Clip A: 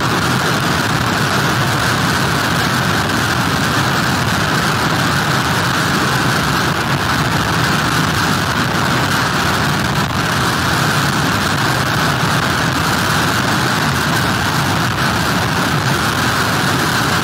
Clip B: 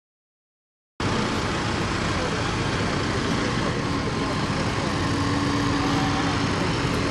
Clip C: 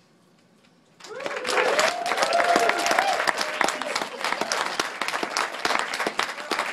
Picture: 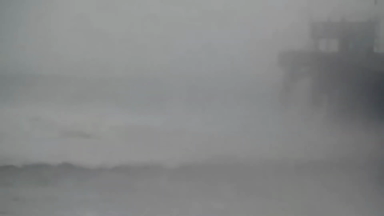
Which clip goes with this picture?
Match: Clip A